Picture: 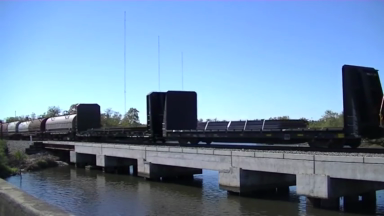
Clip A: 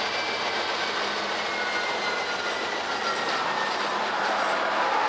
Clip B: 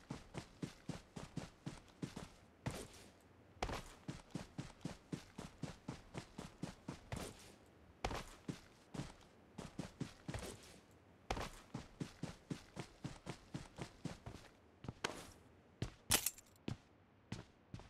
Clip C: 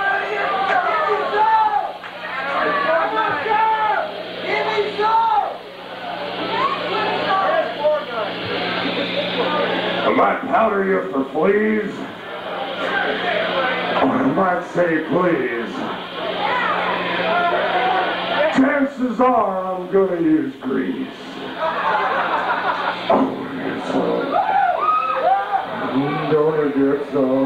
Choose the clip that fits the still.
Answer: A